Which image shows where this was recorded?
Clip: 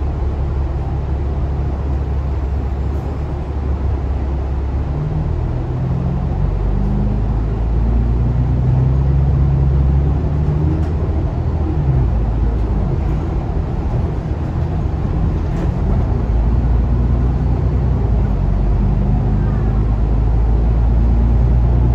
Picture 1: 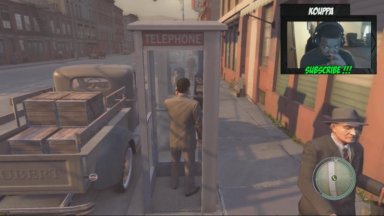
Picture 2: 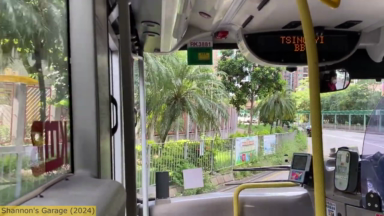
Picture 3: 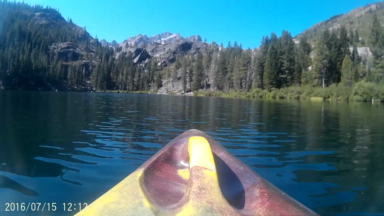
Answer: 2